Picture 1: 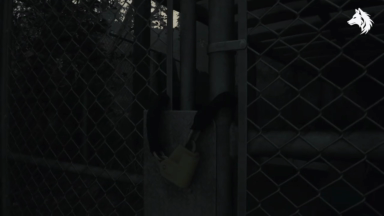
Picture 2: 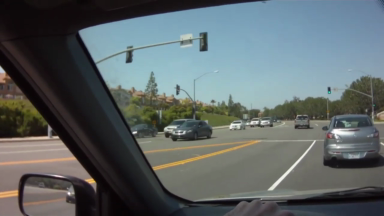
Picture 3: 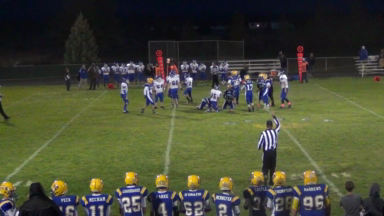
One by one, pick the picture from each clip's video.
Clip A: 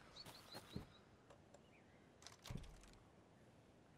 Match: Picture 1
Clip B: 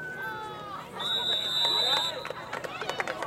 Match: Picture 3